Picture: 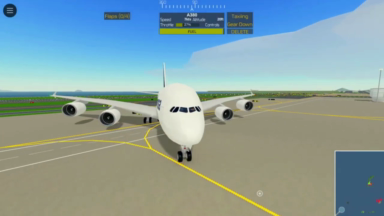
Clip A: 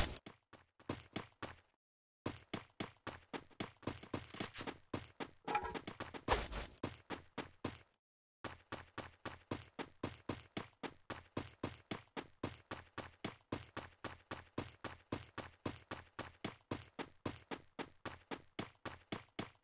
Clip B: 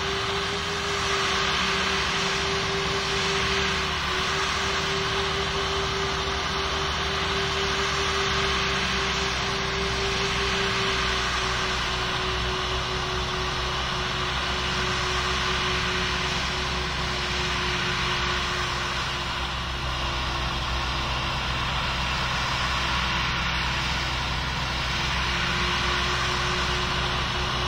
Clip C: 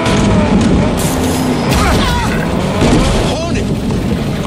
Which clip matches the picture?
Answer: B